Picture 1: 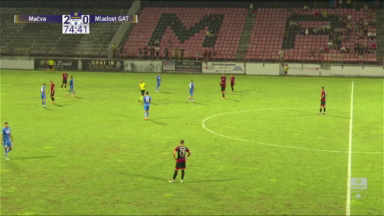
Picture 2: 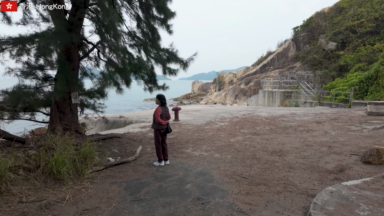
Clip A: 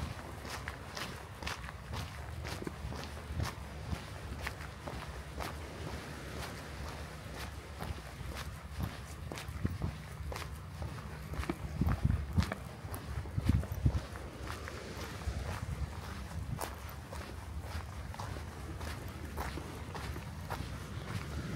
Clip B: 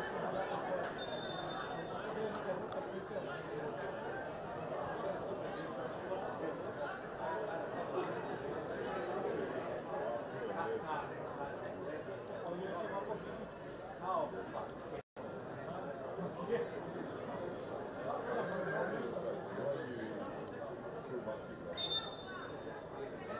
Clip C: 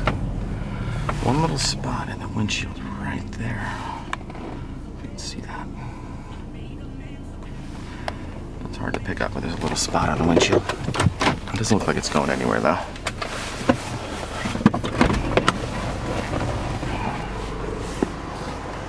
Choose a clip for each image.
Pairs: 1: B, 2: A